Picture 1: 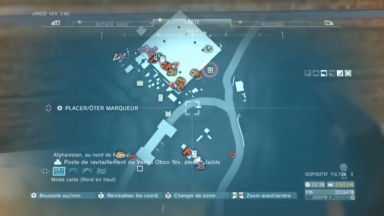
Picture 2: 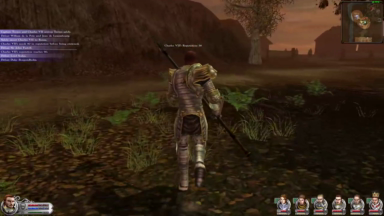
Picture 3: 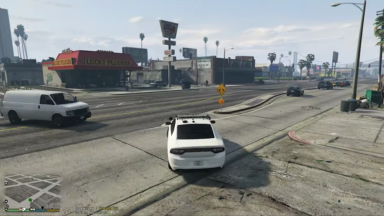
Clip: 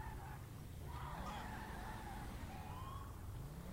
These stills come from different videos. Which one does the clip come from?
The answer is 3